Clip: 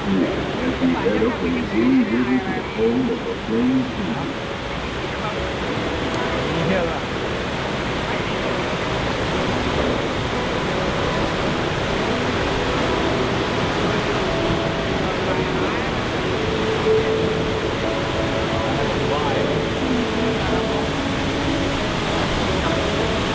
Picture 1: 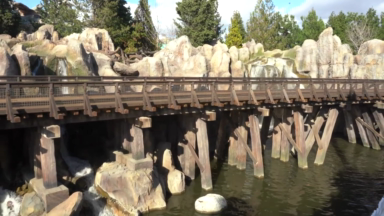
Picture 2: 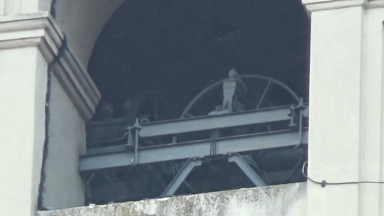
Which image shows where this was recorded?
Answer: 1